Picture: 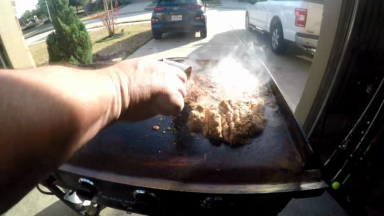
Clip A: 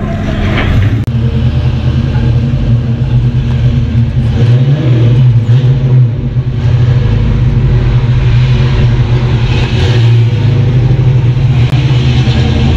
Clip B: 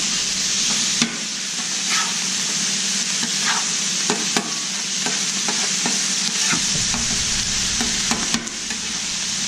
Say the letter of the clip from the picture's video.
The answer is B